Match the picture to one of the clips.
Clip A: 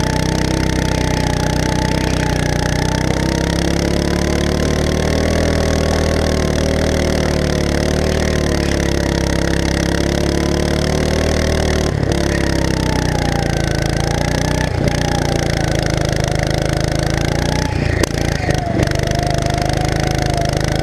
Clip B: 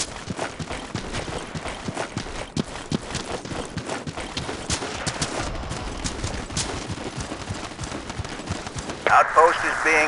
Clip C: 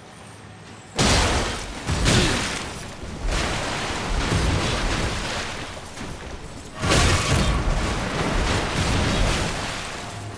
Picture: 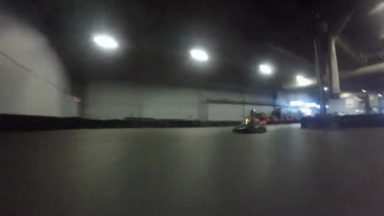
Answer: A